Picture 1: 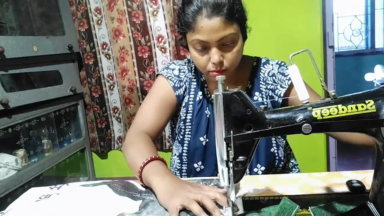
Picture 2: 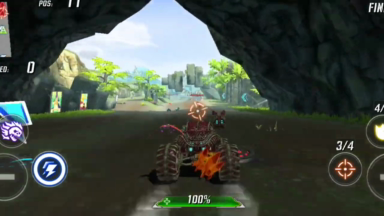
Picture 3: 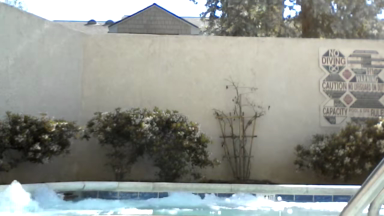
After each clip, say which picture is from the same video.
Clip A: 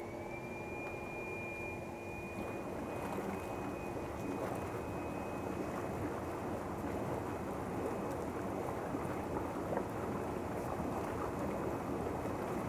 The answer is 3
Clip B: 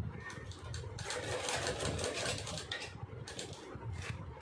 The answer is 1